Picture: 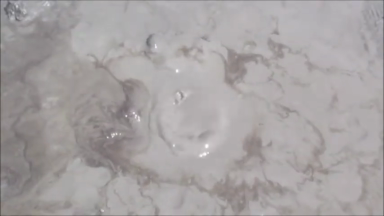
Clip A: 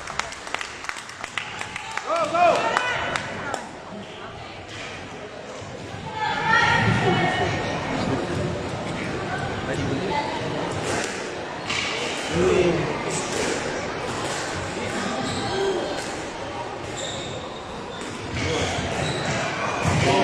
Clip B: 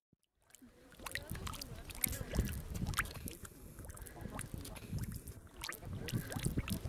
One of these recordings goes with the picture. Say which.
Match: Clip B